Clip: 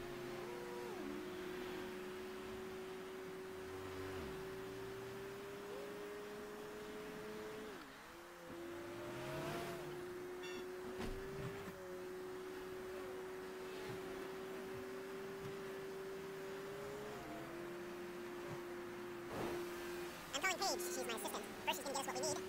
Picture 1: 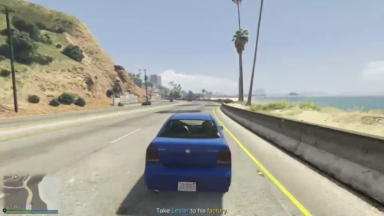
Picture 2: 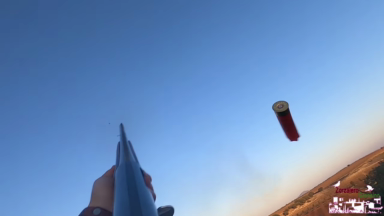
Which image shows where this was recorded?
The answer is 1